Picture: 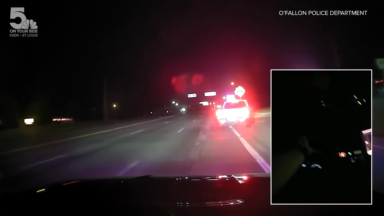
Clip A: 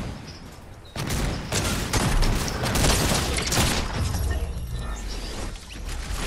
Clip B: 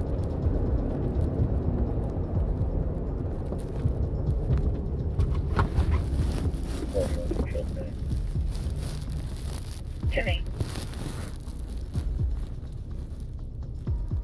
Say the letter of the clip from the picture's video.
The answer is B